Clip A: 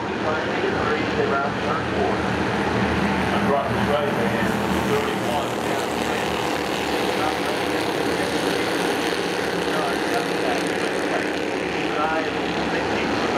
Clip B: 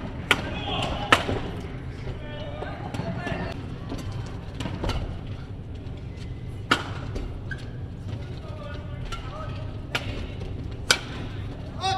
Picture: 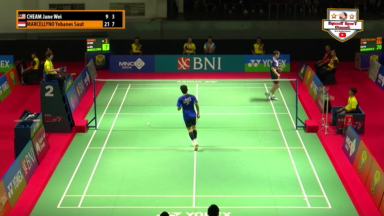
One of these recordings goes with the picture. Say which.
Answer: B